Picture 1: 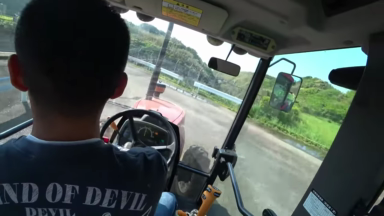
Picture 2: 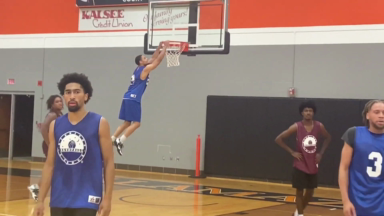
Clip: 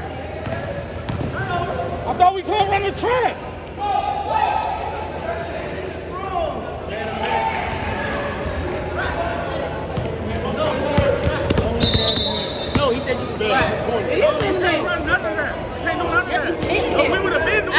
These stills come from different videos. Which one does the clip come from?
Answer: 2